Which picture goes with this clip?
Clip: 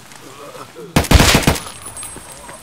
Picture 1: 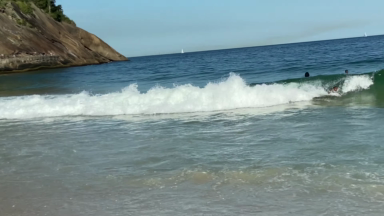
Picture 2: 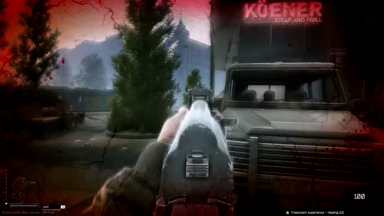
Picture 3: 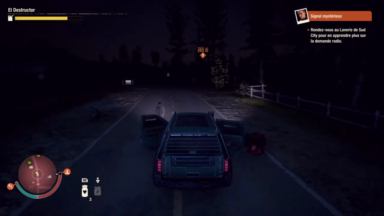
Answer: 2